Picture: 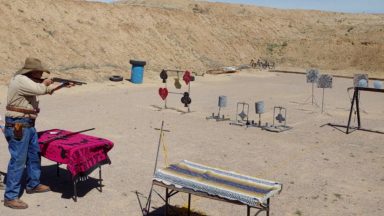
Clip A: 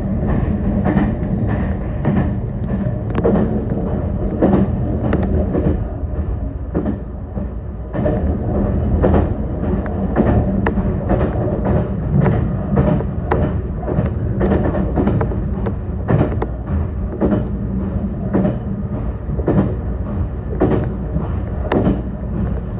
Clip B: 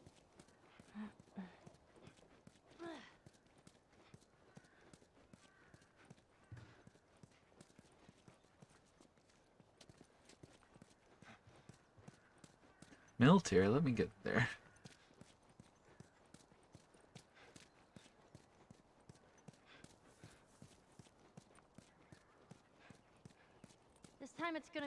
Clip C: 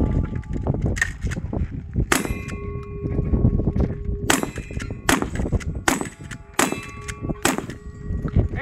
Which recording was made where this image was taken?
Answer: C